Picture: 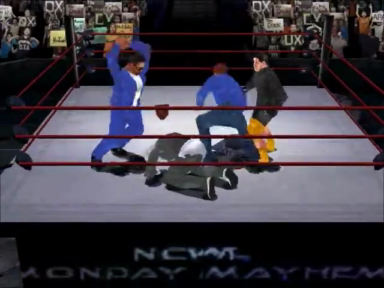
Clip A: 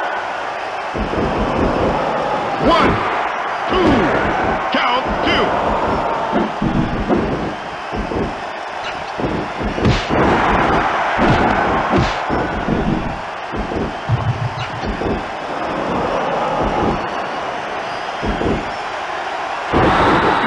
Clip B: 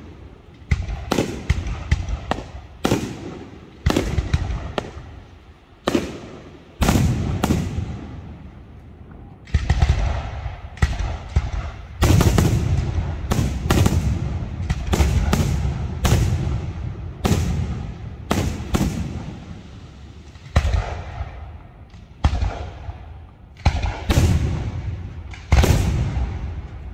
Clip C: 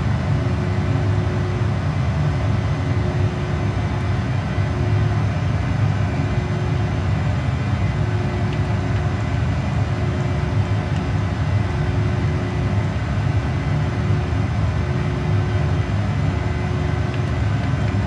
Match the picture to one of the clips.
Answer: A